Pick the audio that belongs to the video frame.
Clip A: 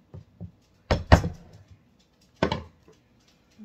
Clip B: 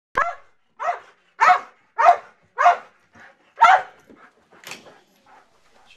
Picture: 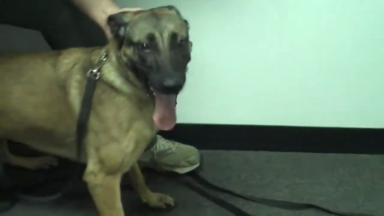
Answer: B